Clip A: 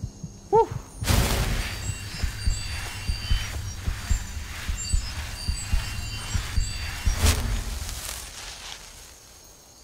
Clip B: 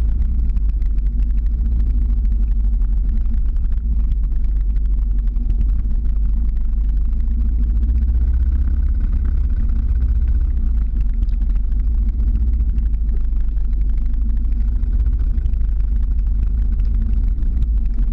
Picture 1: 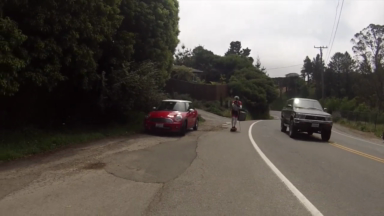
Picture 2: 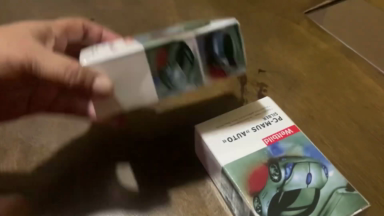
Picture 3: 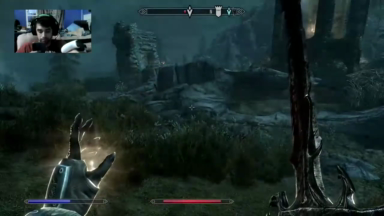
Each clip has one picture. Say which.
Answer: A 3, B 1